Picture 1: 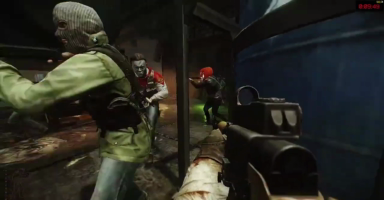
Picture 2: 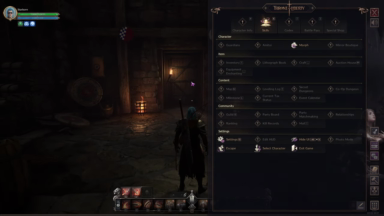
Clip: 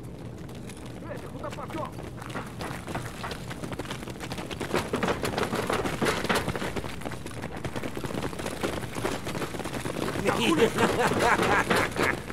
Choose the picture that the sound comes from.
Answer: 1